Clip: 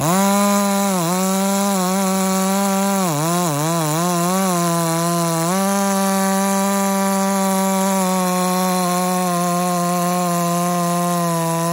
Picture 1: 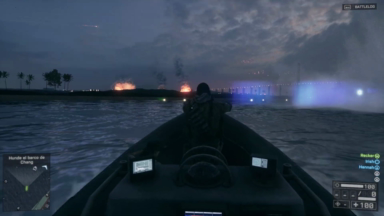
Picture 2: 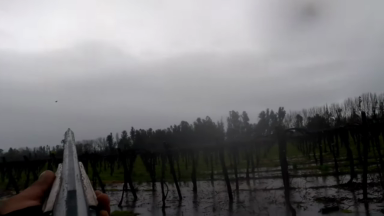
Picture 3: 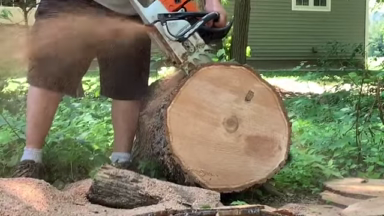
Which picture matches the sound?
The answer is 3